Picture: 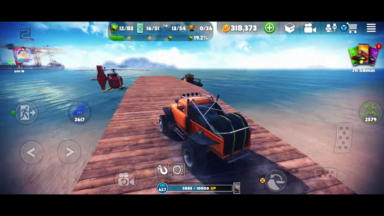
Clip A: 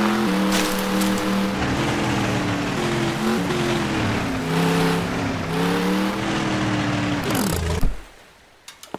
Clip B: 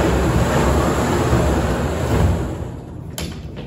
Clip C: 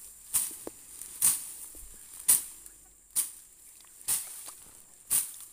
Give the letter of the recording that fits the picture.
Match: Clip A